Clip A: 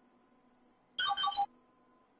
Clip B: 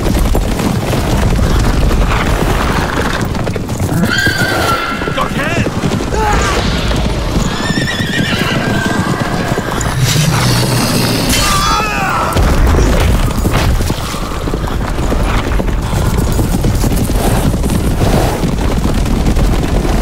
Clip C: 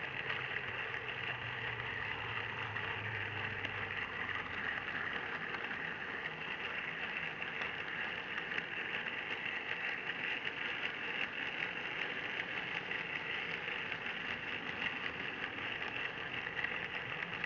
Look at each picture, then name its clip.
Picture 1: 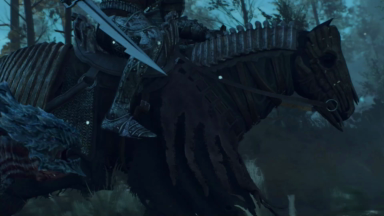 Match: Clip B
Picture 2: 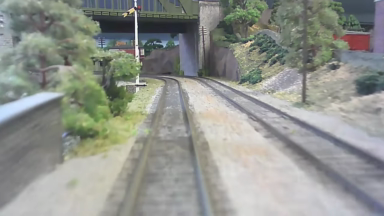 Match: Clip C